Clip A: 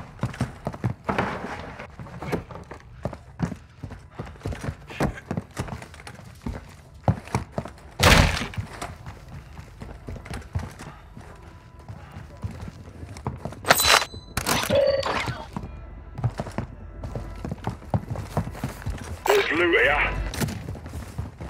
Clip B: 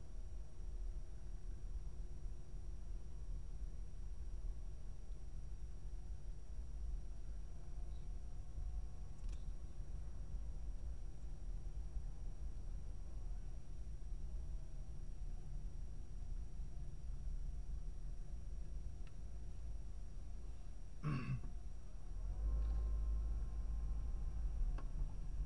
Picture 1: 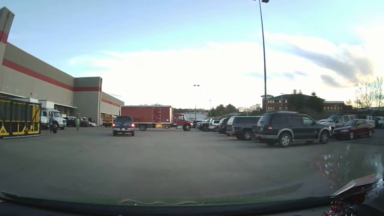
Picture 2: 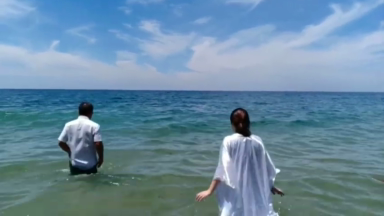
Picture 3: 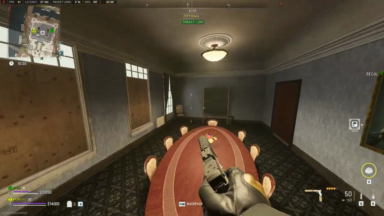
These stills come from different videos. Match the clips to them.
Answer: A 3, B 1